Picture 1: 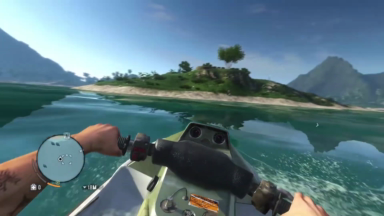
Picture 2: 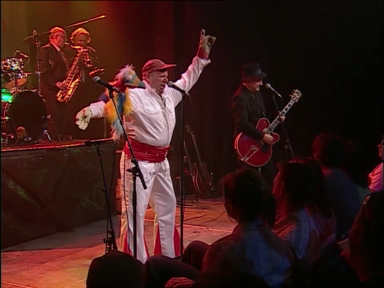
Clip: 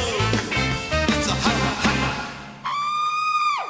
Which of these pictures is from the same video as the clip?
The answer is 2